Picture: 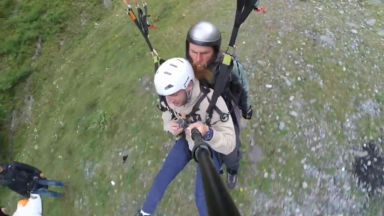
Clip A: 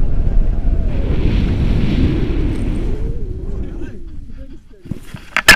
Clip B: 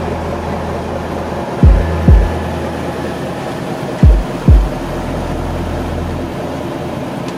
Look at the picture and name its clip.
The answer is A